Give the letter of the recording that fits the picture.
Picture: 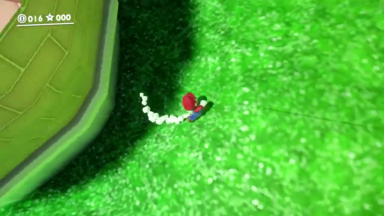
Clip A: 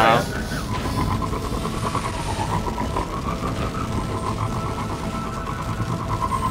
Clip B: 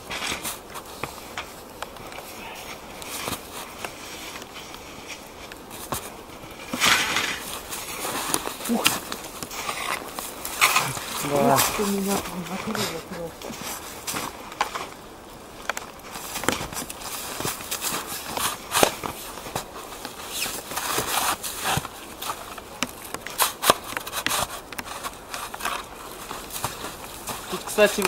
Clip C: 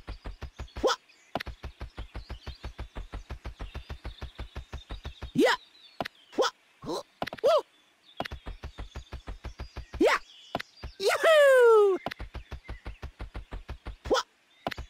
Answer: C